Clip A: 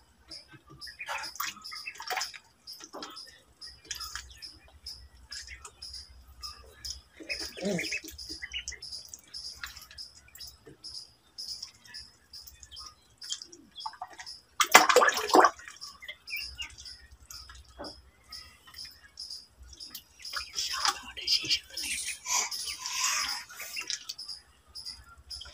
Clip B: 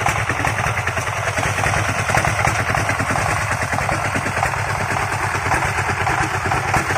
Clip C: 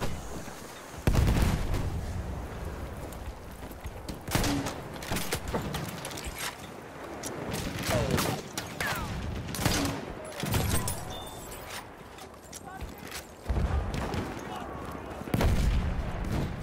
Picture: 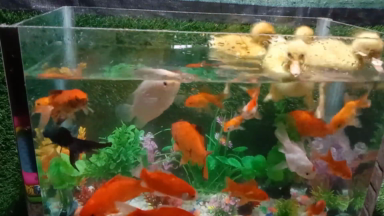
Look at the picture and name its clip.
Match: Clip A